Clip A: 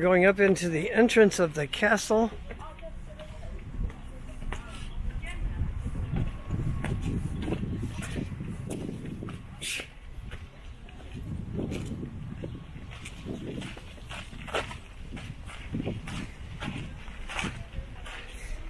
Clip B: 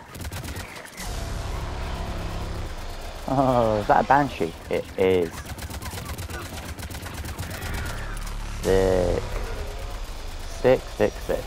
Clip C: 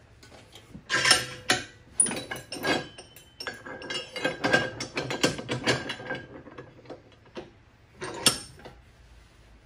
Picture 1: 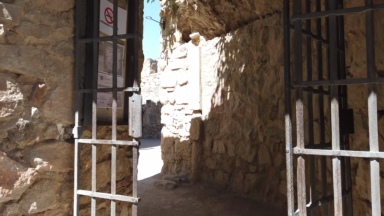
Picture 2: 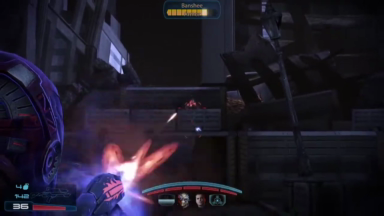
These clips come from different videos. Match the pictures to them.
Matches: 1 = A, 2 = B